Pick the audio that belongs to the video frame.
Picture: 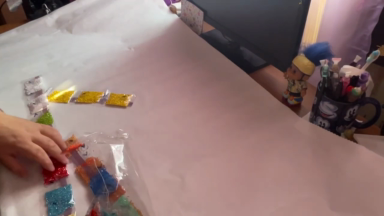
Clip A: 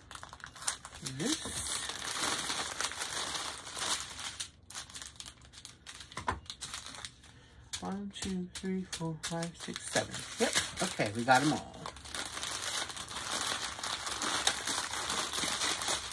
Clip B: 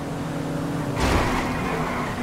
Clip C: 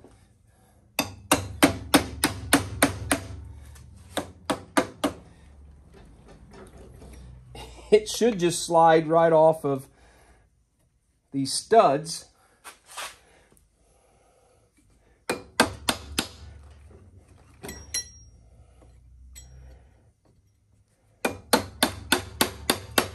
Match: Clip A